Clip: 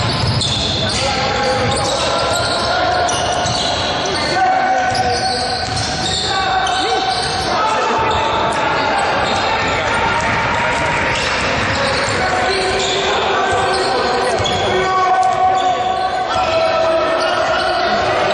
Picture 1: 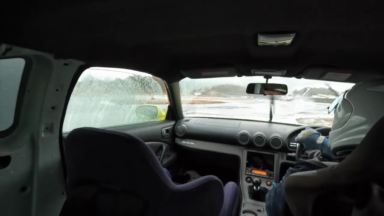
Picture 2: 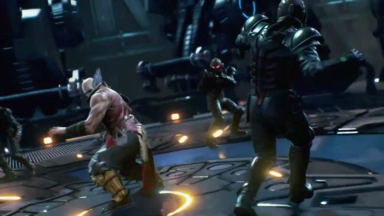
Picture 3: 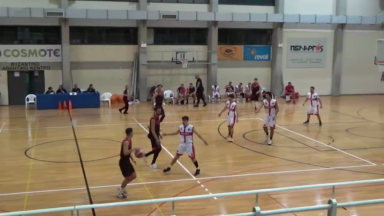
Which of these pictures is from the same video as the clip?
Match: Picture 3